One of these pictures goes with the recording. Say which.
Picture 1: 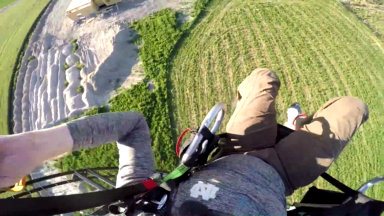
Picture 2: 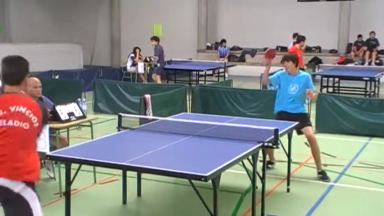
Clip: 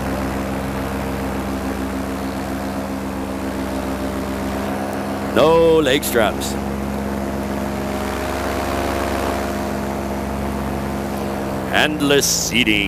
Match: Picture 1